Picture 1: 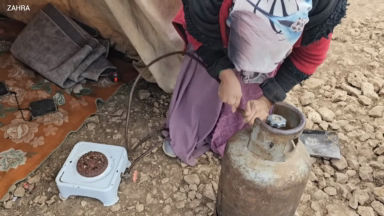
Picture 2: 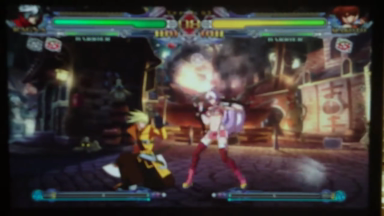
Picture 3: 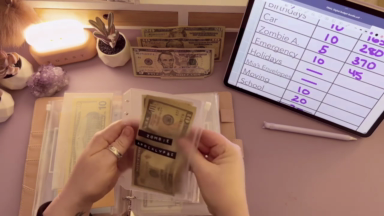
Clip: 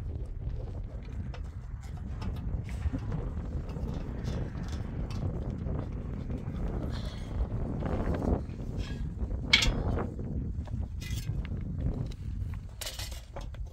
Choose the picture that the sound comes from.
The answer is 1